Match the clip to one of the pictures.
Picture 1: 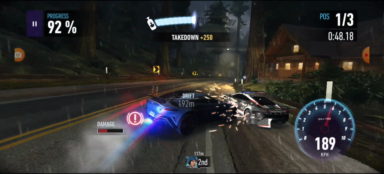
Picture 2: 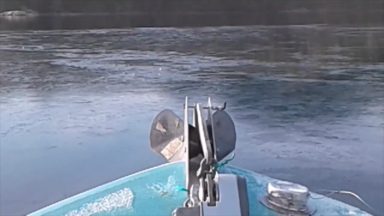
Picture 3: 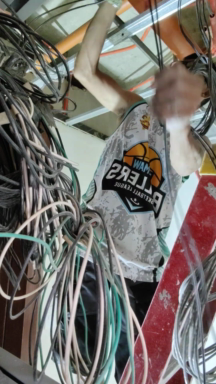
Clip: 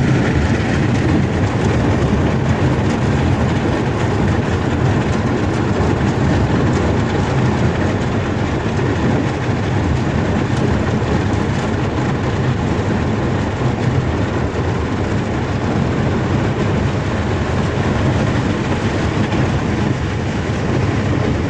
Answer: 2